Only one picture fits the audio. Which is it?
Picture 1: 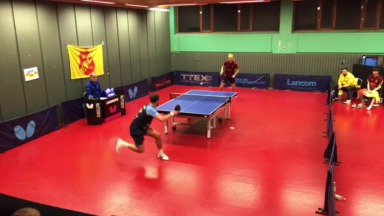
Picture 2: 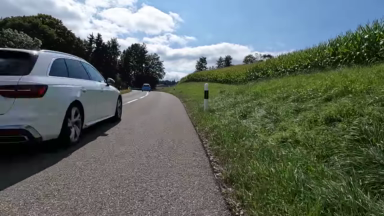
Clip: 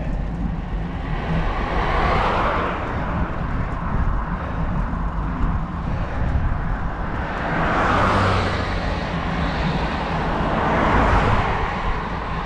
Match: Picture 2